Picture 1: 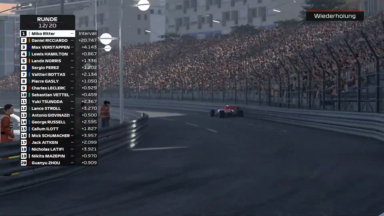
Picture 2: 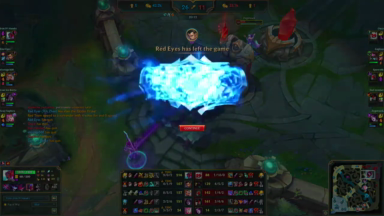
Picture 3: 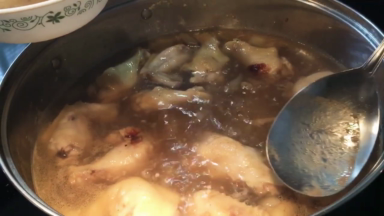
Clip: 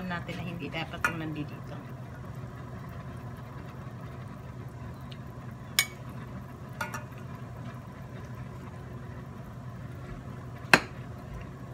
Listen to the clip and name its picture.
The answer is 3